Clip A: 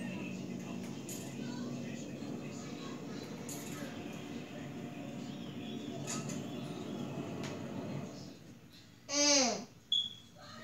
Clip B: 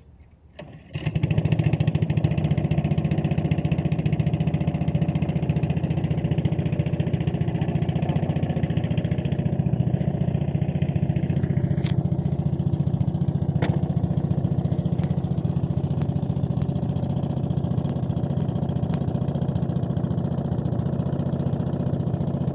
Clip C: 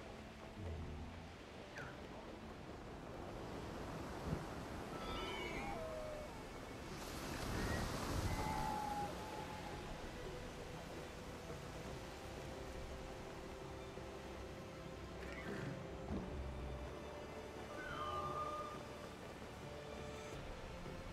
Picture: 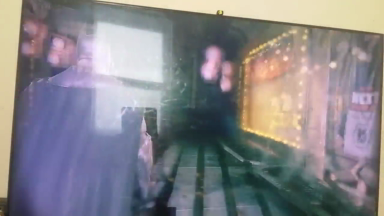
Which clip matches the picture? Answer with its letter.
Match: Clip A